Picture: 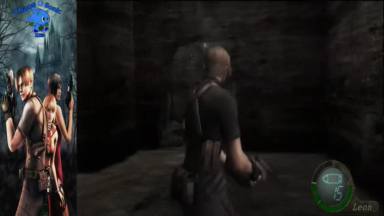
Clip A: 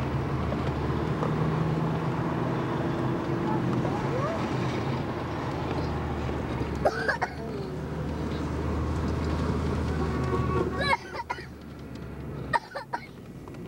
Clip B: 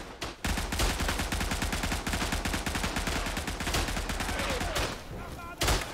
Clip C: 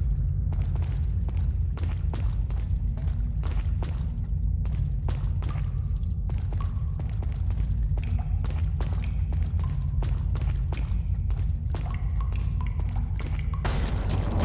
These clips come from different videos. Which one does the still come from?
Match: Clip C